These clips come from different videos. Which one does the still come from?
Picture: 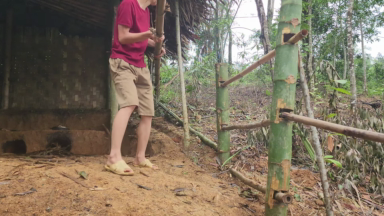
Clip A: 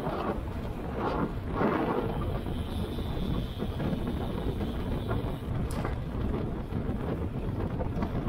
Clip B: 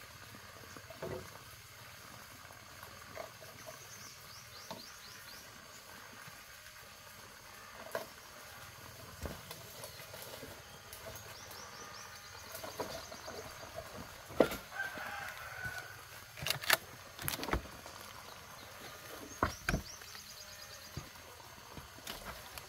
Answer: B